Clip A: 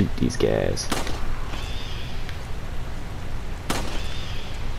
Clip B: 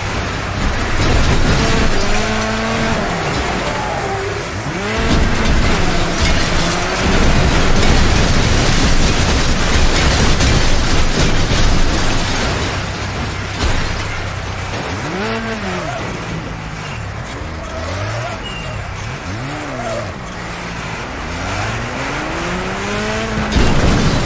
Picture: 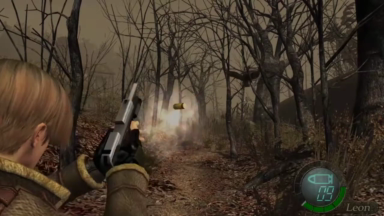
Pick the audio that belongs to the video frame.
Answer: A